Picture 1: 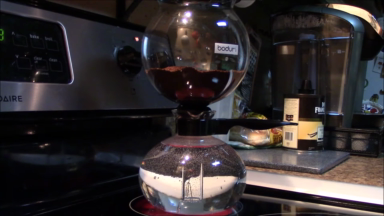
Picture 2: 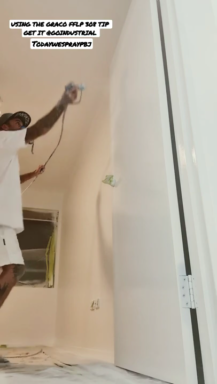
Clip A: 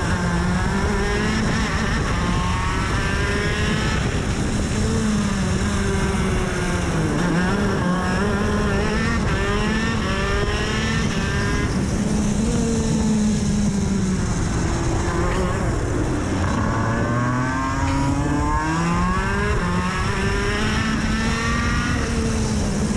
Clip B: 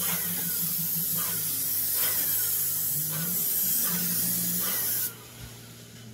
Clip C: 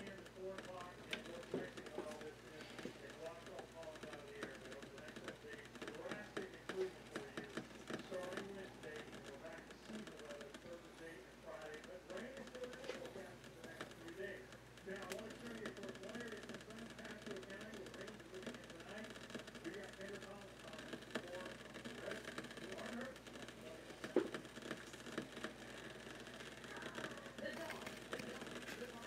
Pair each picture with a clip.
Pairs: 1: C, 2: B